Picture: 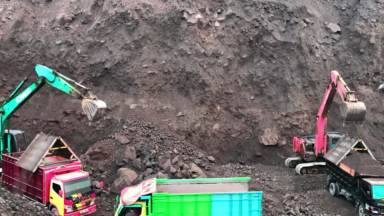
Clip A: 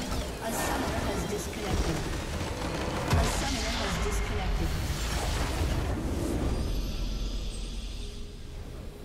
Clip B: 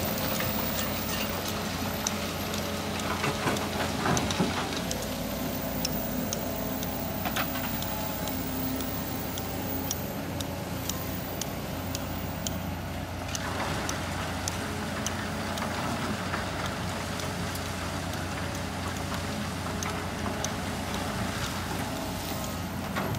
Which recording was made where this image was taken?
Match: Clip B